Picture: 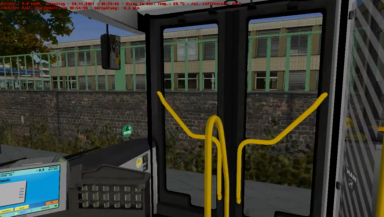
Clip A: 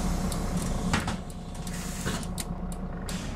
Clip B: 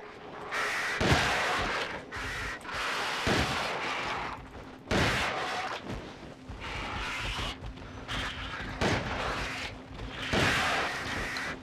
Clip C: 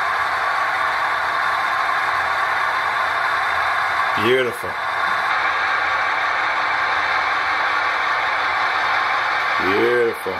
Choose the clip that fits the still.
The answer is A